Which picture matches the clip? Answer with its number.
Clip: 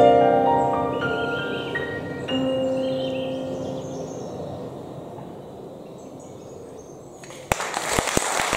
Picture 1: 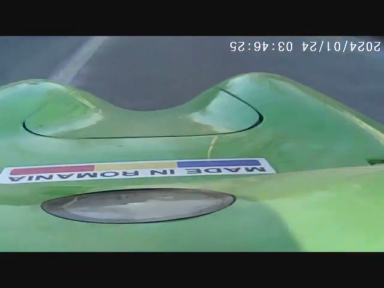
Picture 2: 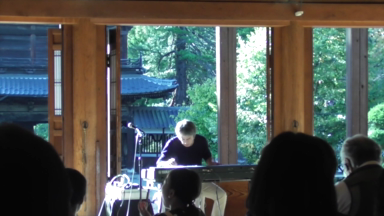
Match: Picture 2